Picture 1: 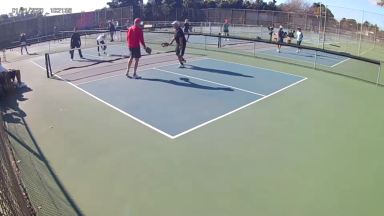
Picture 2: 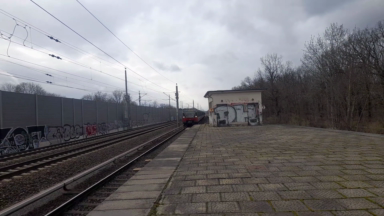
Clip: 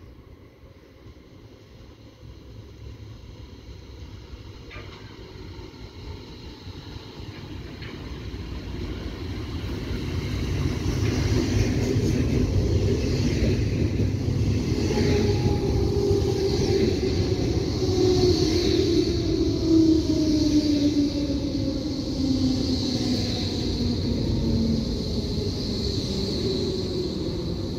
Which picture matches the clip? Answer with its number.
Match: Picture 2